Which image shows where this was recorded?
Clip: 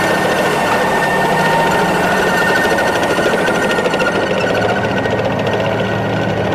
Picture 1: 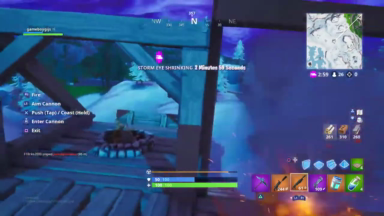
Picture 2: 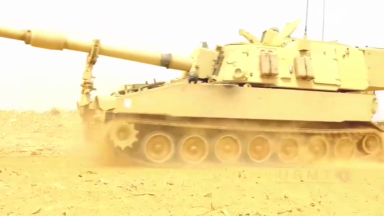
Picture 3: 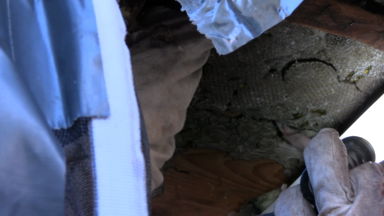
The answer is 2